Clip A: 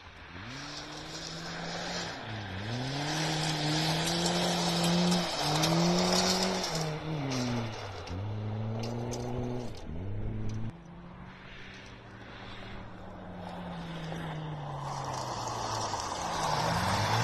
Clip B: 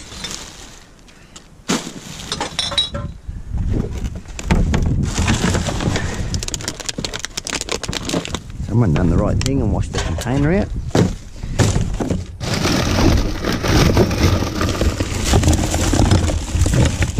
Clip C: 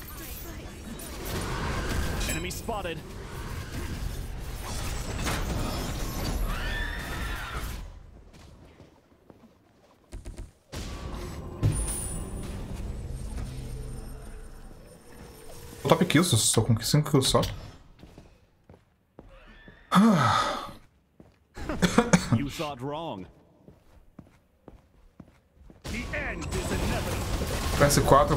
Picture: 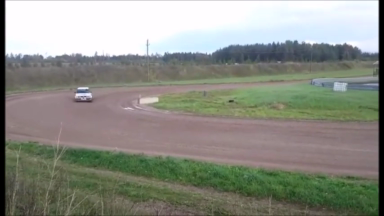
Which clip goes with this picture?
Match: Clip A